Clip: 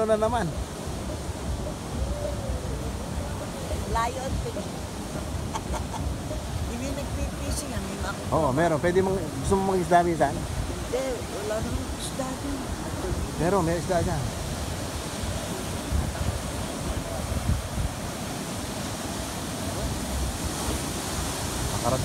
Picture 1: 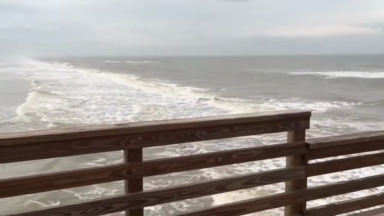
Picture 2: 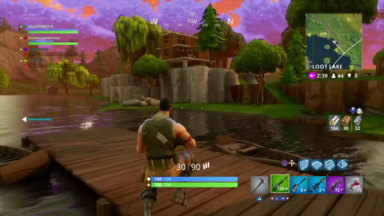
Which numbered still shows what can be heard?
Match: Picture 1